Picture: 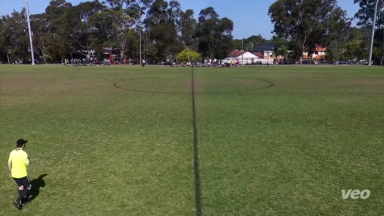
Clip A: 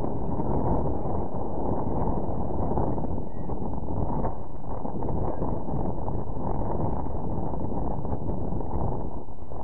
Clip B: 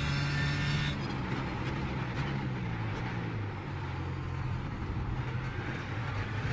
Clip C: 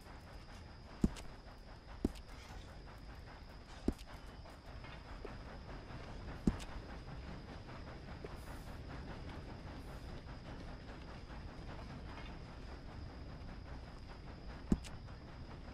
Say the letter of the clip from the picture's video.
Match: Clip A